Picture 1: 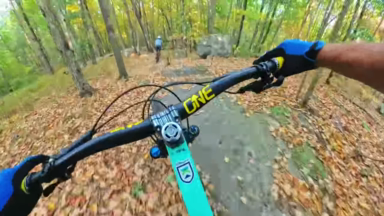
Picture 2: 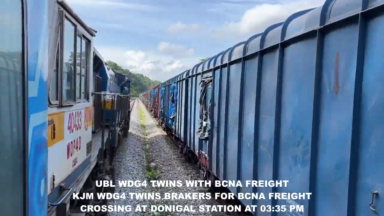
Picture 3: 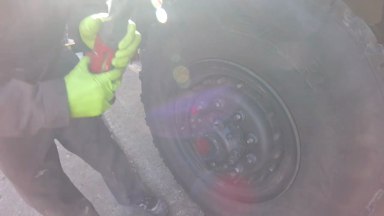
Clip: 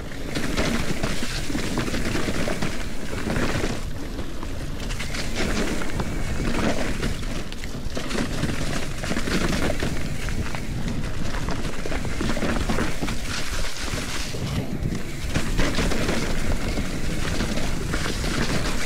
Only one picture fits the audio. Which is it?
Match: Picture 1